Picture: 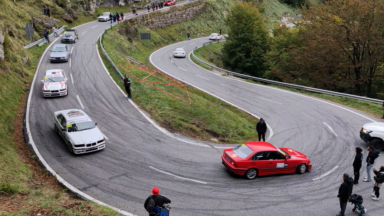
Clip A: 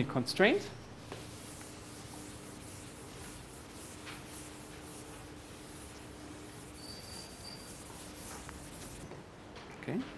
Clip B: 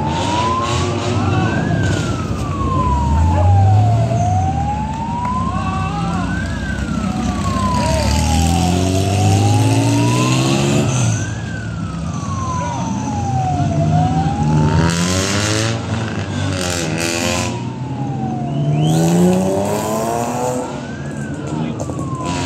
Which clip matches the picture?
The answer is B